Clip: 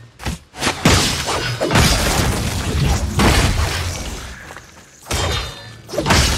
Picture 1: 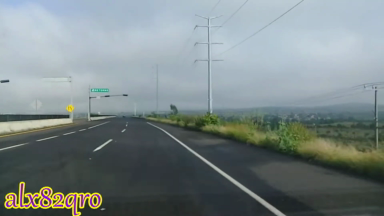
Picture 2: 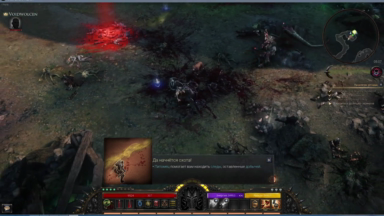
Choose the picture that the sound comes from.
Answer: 2